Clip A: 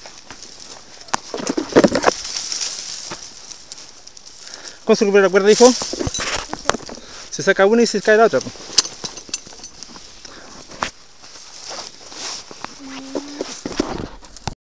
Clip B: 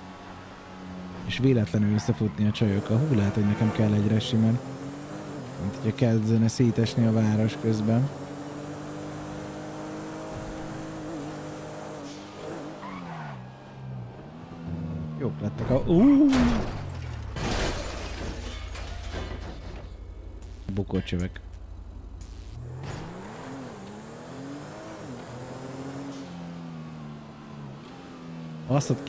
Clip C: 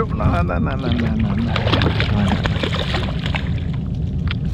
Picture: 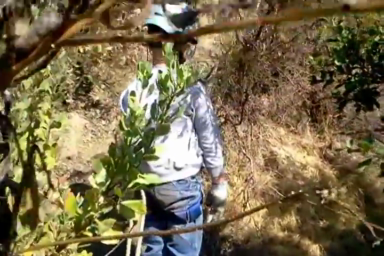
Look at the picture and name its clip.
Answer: A